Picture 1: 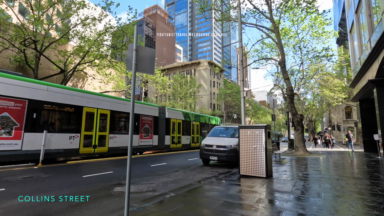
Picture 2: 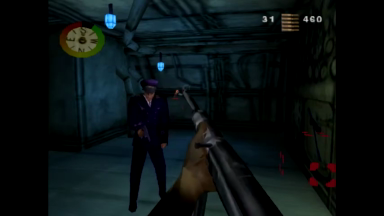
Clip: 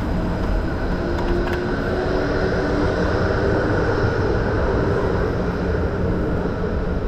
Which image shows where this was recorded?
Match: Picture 1